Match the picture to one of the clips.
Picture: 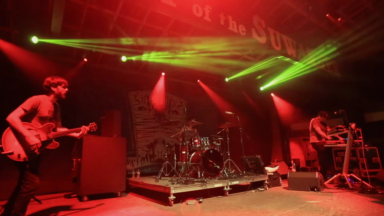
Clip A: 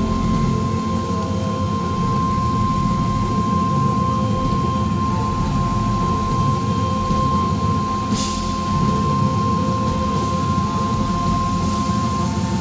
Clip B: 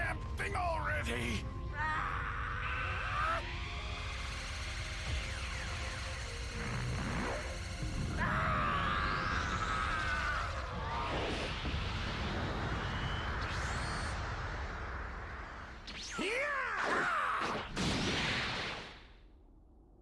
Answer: A